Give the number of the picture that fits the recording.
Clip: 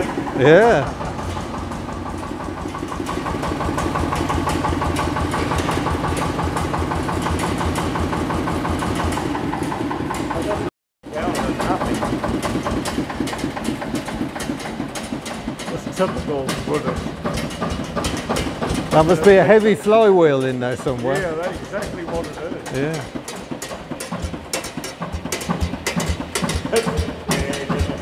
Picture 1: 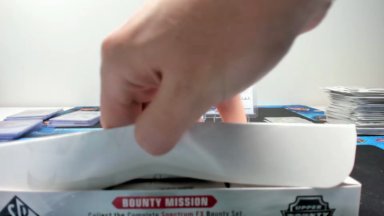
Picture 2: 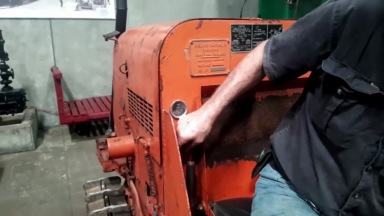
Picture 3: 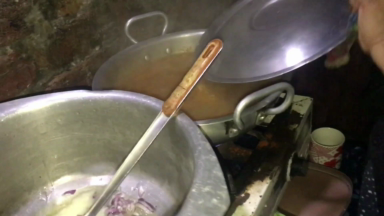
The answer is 2